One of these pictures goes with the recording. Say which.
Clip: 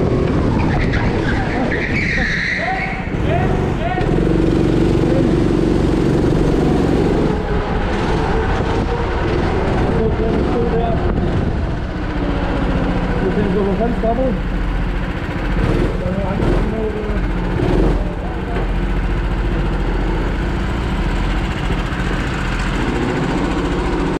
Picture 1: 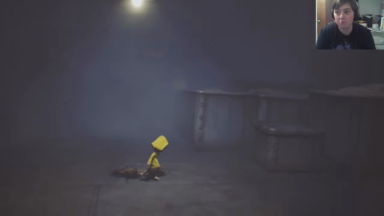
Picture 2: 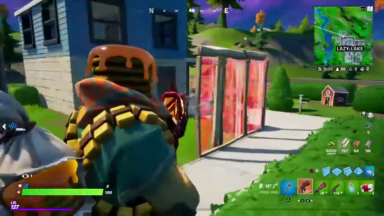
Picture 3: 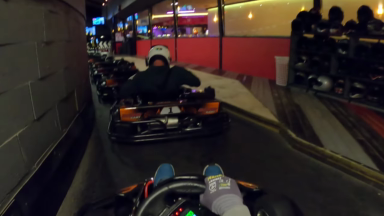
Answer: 3